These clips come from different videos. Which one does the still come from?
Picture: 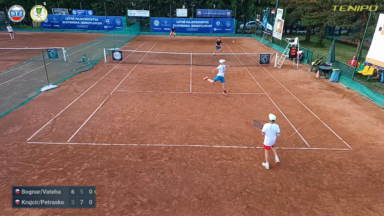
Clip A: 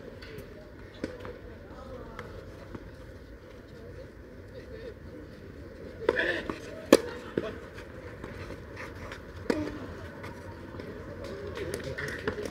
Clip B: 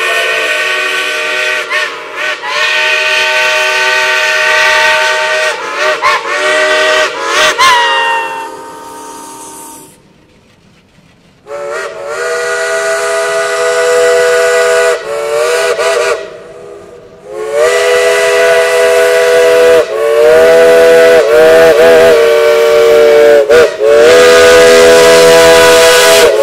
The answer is A